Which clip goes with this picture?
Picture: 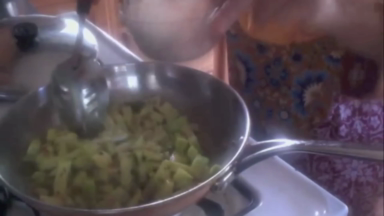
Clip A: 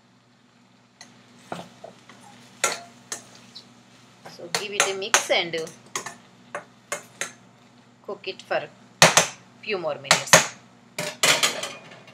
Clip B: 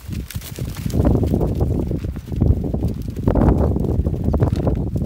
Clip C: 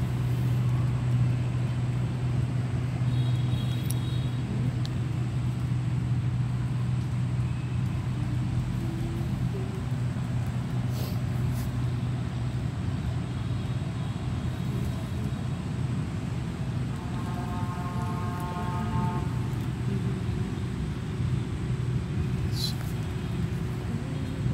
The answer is A